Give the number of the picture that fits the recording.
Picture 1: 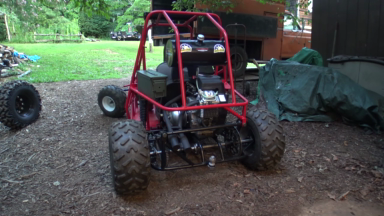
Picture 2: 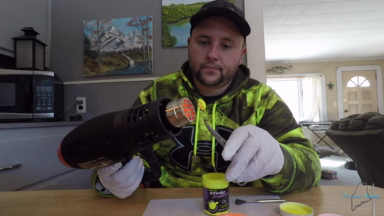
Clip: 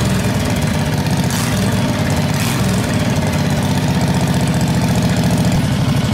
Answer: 1